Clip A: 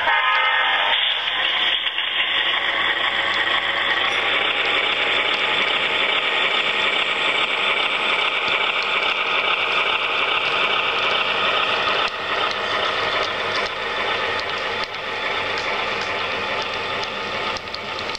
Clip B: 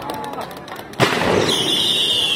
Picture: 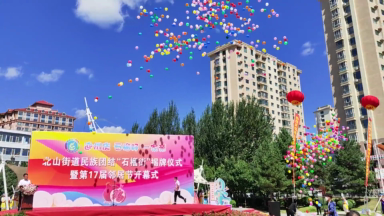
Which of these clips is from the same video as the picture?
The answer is B